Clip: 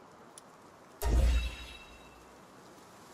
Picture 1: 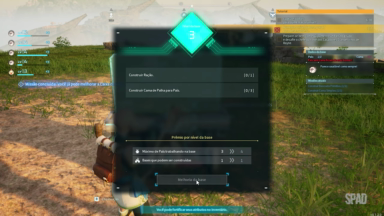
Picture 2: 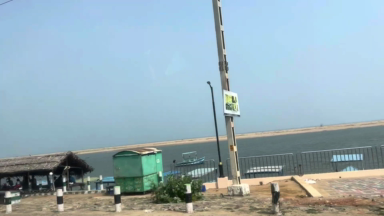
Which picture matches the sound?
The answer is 1